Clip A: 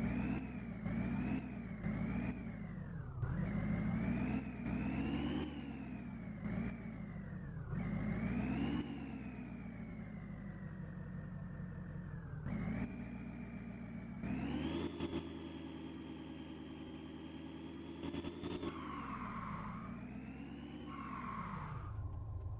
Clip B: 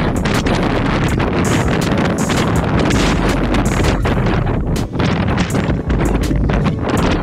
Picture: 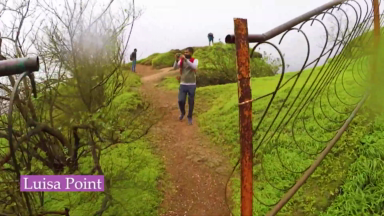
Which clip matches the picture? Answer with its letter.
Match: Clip B